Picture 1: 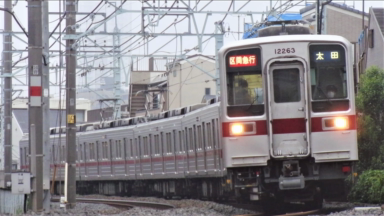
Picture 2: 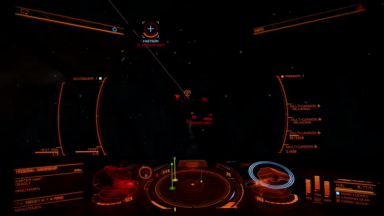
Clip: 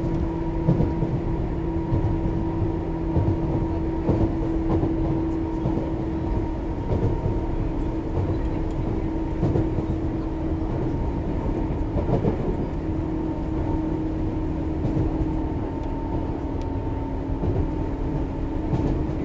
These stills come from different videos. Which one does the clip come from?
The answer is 1